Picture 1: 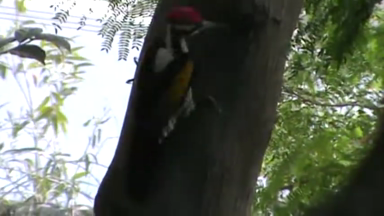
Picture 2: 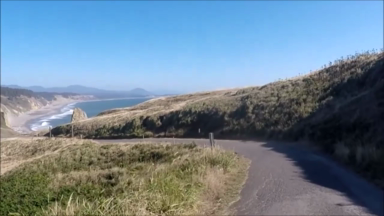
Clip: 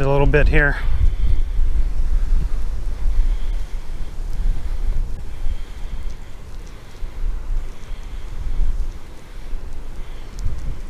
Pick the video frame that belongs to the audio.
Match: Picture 2